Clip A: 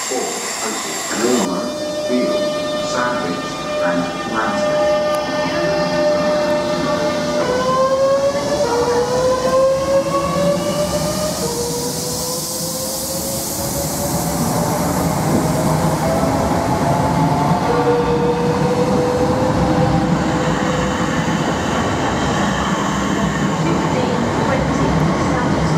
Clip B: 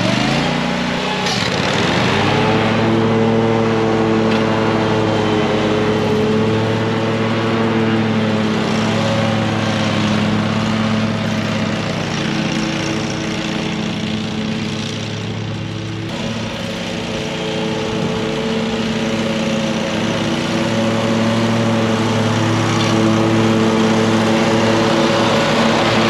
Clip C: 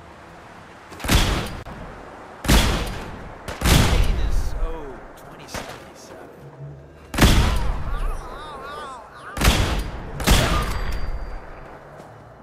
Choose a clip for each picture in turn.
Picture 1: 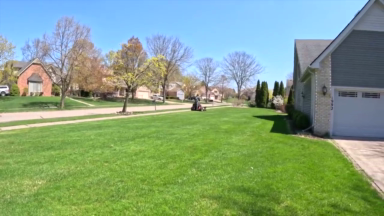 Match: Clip B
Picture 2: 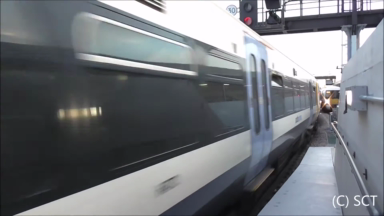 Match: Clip A